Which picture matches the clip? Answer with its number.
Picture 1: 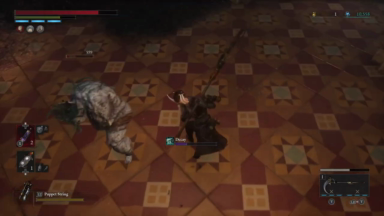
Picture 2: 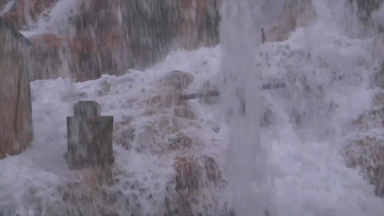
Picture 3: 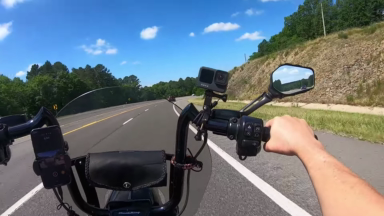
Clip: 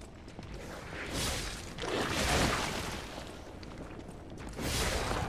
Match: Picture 1